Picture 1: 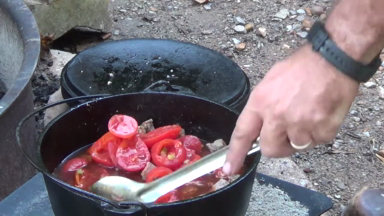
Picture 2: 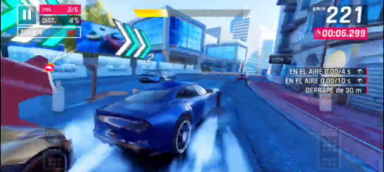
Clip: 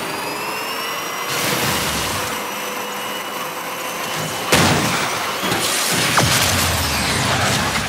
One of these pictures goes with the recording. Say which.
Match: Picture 2